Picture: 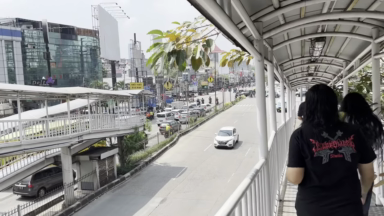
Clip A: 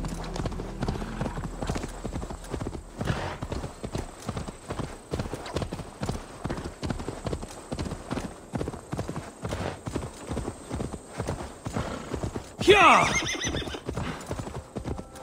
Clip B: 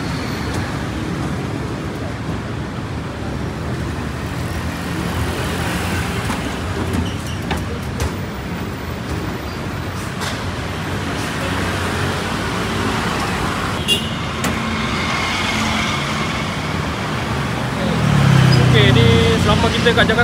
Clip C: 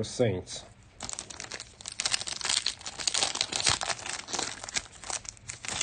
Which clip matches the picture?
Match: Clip B